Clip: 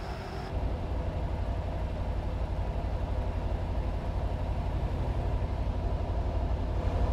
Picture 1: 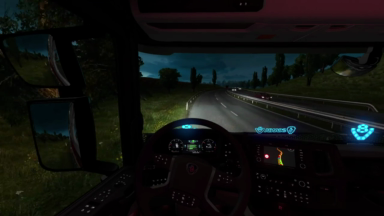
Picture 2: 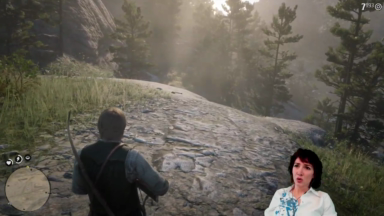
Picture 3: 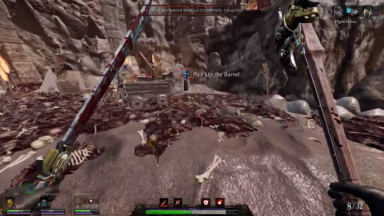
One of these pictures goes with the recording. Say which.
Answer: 1